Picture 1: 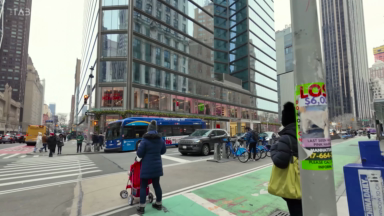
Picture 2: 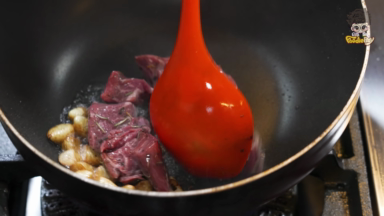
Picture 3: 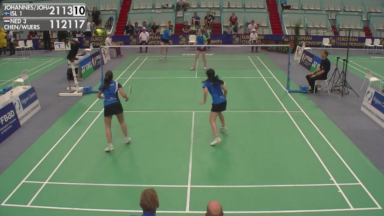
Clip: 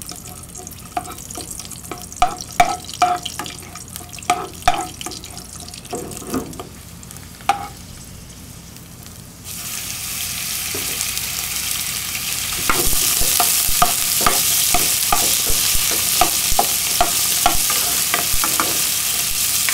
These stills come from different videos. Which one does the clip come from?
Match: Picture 2